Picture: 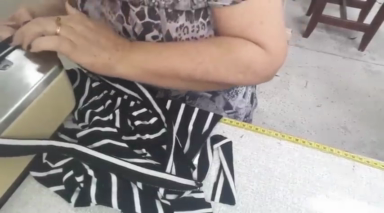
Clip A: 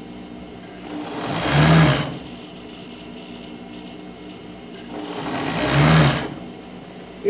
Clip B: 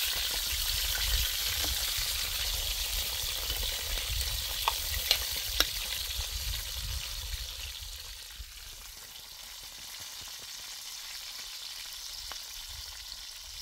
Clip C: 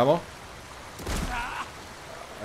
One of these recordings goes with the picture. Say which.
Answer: A